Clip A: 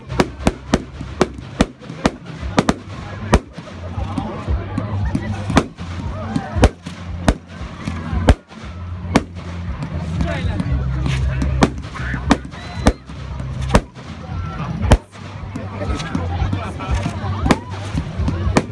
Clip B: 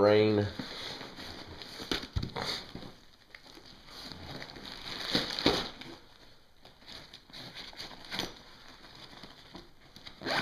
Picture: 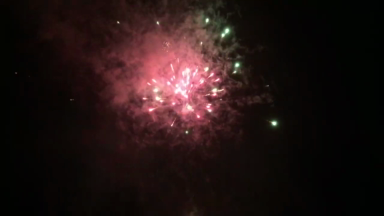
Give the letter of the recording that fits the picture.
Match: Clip A